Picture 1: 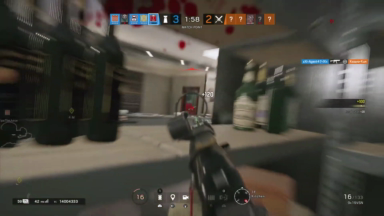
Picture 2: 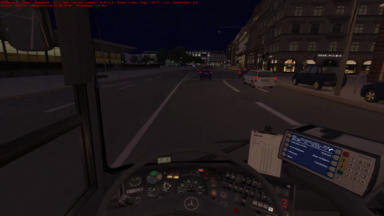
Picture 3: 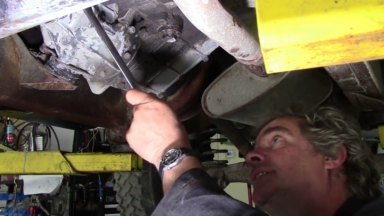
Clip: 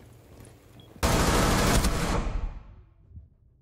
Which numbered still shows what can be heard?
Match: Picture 1